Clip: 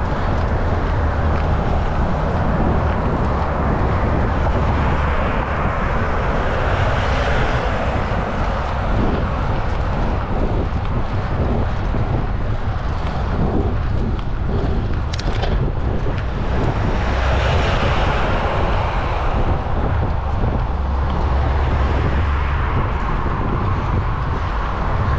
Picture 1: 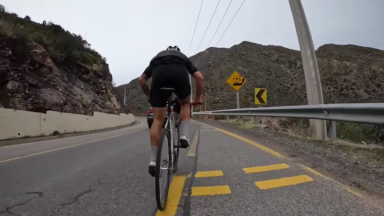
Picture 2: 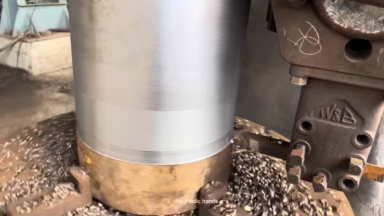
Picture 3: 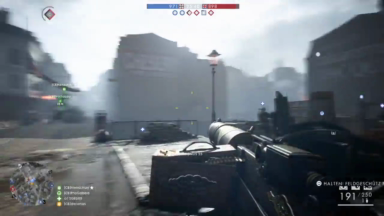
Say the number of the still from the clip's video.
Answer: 1